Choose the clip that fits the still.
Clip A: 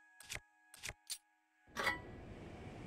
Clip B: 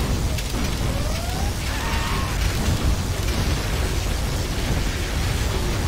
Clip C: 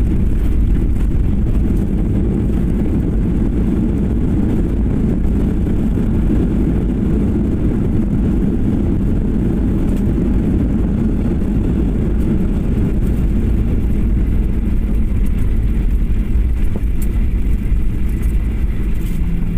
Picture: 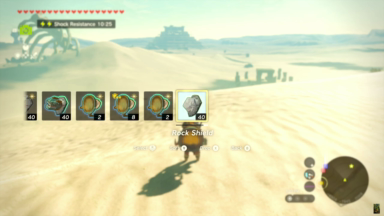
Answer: A